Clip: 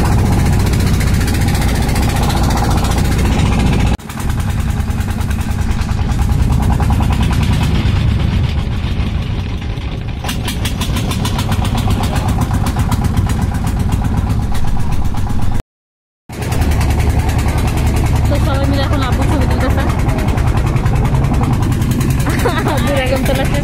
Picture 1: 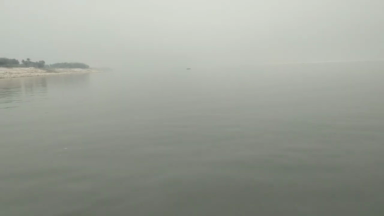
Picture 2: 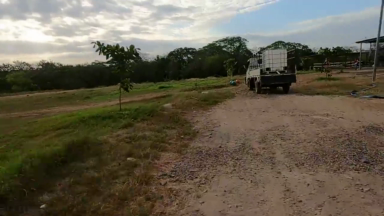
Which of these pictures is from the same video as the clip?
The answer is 1